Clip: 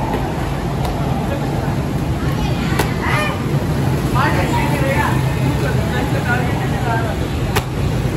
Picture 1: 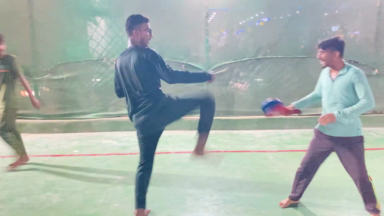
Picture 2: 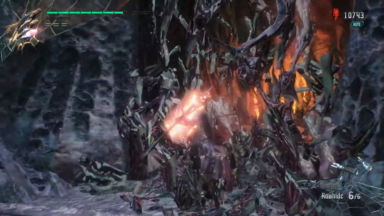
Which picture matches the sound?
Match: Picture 1